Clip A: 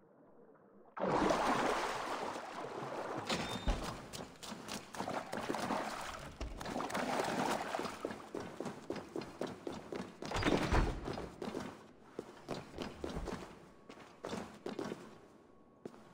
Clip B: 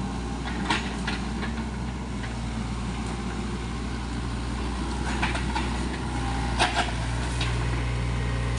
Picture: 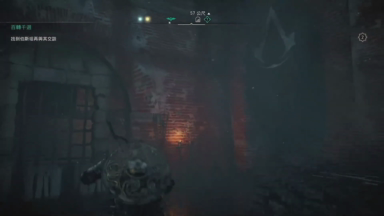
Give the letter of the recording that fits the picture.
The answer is A